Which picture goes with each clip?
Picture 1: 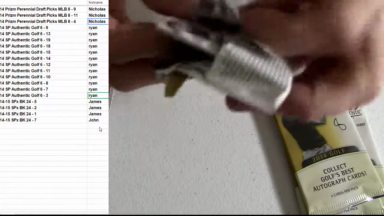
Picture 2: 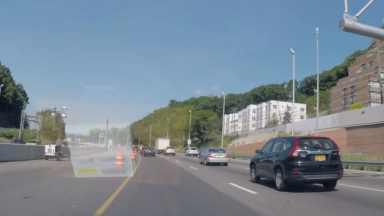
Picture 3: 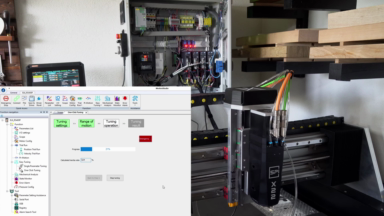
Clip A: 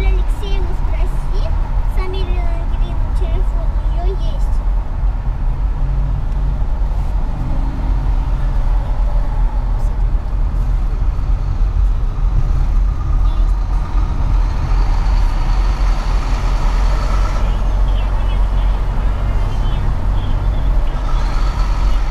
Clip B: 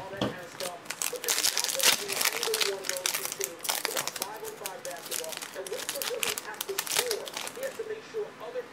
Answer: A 2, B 1